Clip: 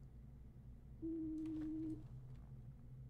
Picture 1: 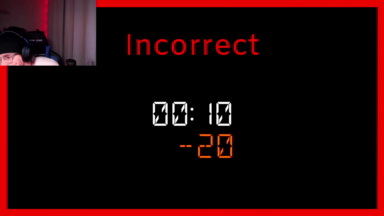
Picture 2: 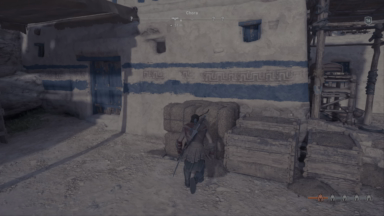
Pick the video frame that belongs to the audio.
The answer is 1